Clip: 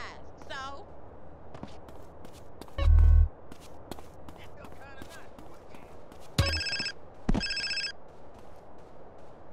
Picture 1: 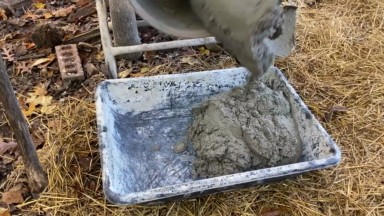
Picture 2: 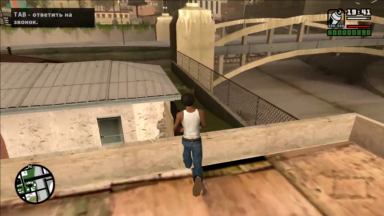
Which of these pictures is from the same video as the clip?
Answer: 2